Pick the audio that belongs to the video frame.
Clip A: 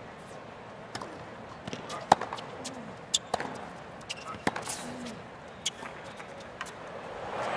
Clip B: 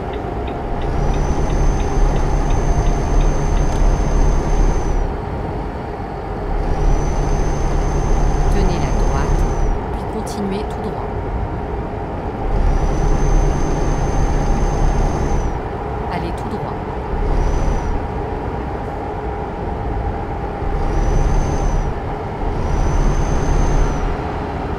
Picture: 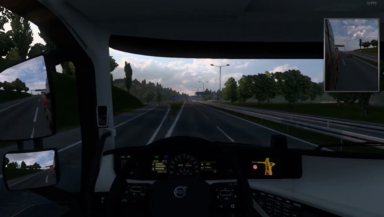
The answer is B